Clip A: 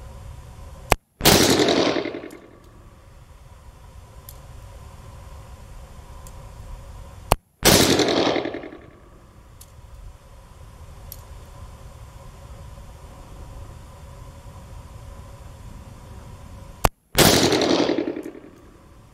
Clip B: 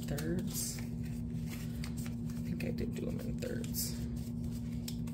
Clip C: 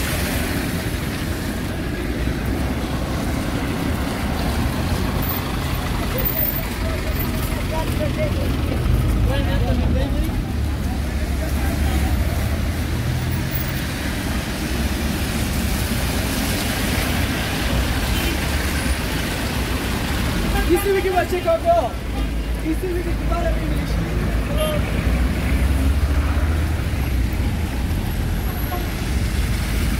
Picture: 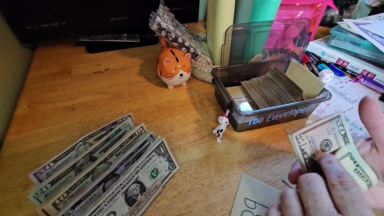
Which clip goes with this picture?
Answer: B